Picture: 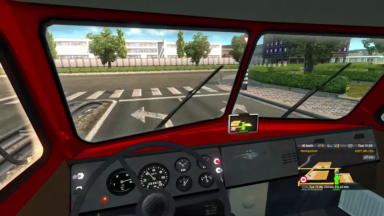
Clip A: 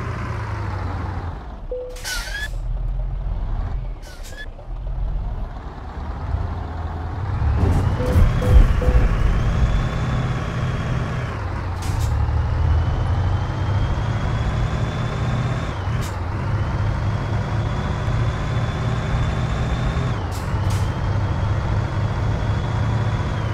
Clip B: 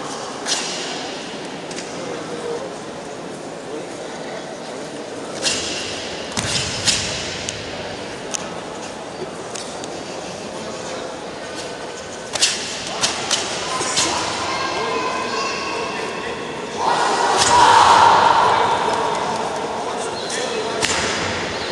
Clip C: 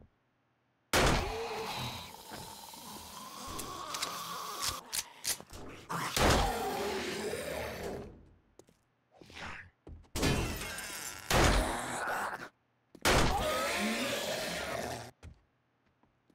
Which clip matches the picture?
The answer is A